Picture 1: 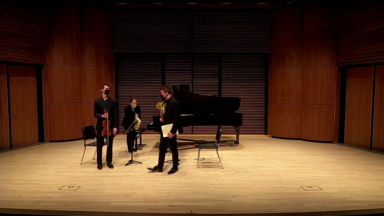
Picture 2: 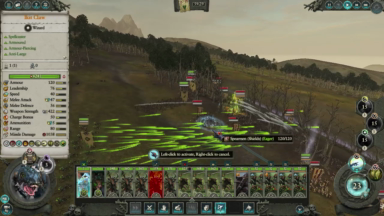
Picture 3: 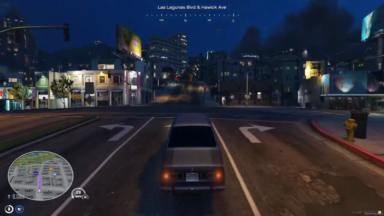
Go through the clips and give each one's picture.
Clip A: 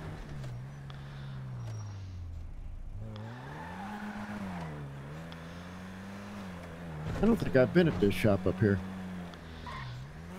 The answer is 3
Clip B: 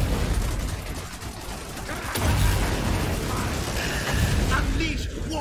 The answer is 2